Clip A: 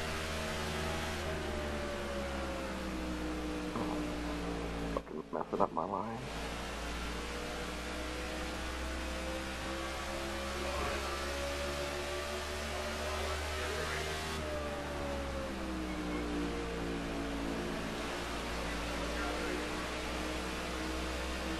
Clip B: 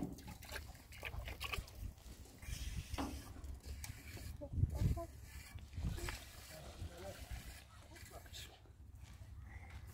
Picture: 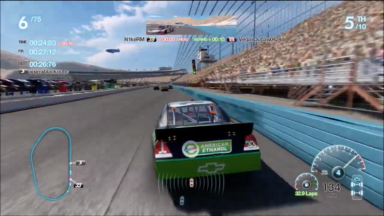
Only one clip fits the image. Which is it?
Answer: A